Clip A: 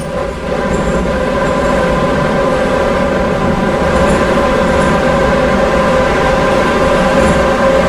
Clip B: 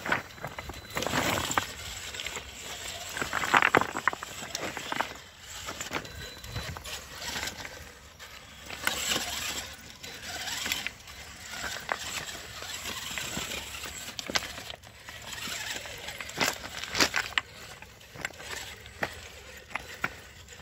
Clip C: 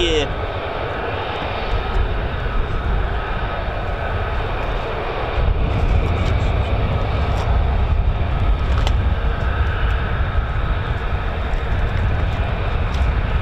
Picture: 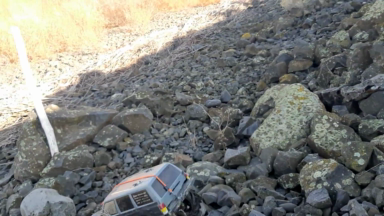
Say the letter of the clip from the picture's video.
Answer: B